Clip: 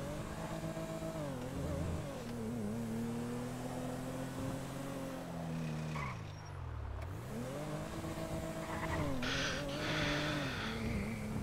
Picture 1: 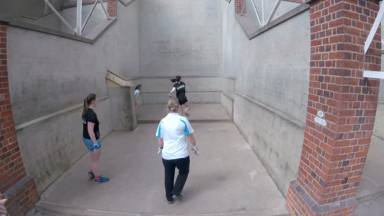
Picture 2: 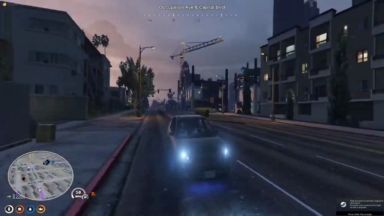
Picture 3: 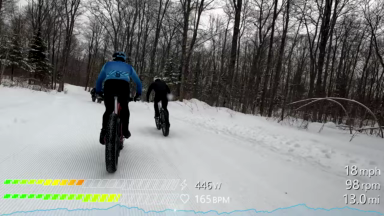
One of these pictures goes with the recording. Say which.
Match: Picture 2